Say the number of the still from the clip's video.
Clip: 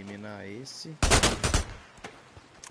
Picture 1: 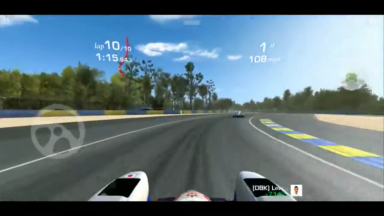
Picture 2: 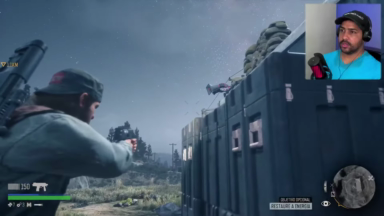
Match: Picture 2